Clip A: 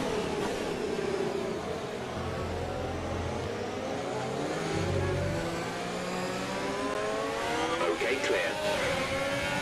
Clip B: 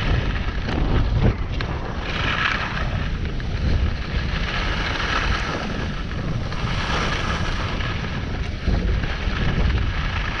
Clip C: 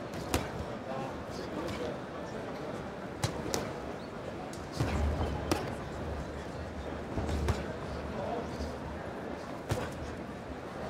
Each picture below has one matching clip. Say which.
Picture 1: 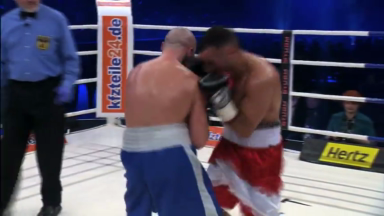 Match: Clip C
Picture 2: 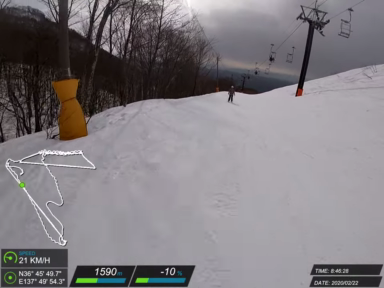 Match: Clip B